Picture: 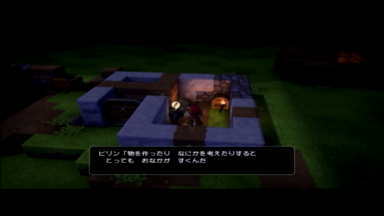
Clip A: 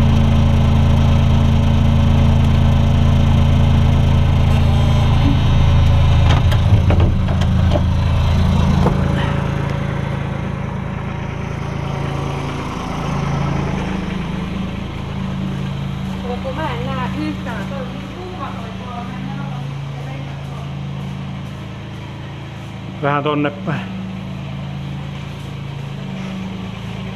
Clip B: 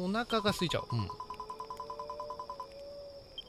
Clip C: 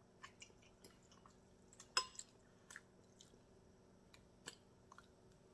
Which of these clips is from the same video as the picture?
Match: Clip B